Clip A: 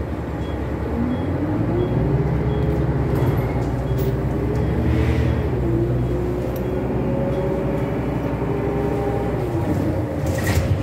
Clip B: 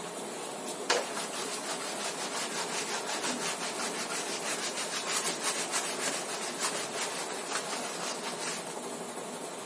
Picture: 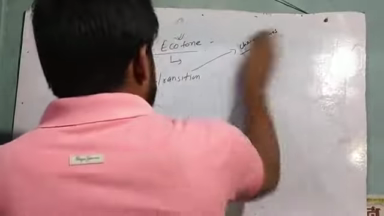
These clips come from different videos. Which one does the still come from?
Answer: B